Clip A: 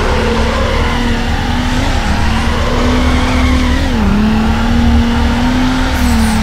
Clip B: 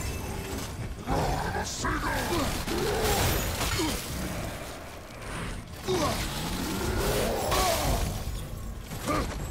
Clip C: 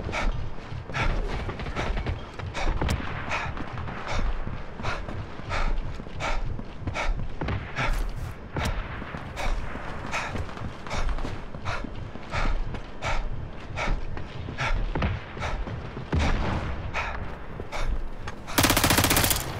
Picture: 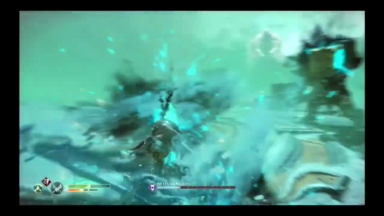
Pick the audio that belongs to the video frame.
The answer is B